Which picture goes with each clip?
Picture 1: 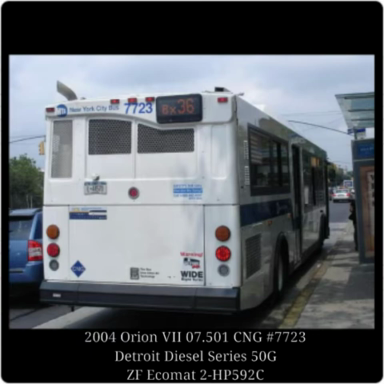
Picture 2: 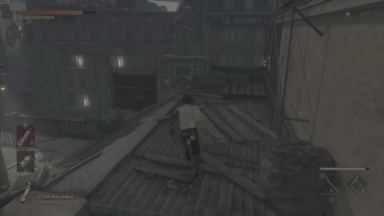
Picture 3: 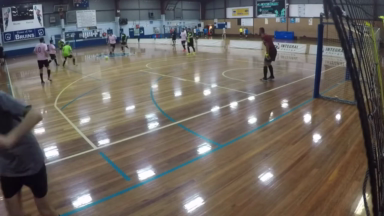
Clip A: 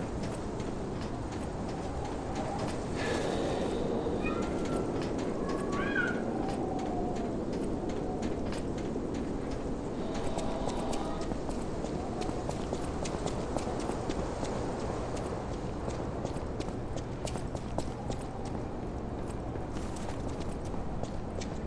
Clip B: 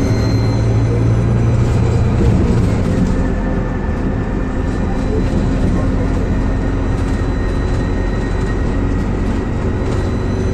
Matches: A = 2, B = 1